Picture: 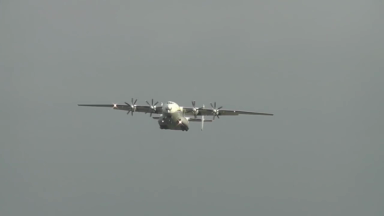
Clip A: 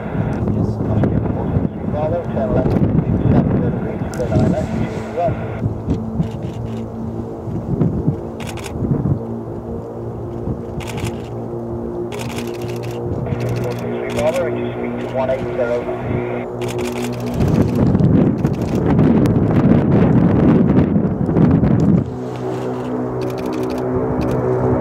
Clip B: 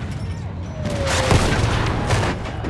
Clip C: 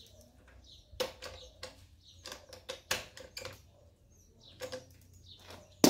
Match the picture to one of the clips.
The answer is A